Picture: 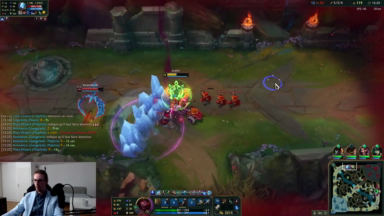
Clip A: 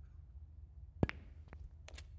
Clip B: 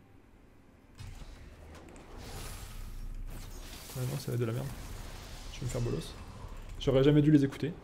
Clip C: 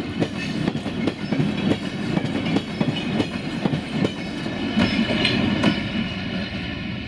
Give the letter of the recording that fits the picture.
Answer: B